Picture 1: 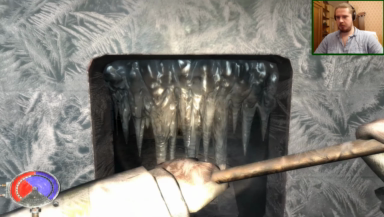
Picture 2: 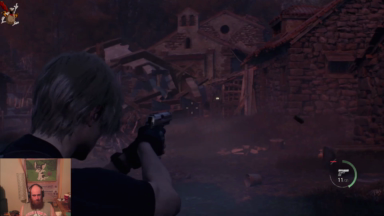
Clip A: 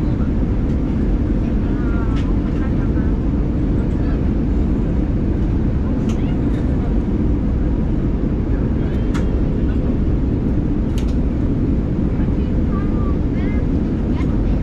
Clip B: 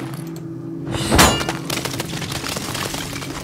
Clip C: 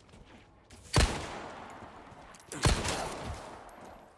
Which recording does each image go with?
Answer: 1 B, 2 C